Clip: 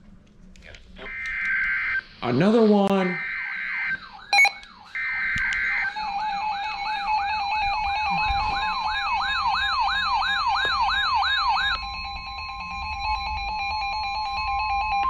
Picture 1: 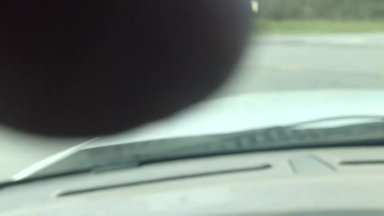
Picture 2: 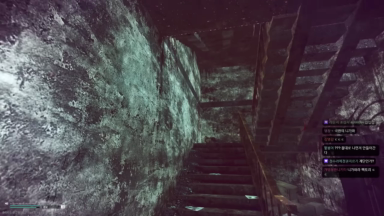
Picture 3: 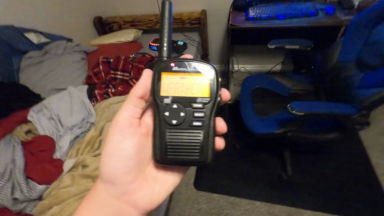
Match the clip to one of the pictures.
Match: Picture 3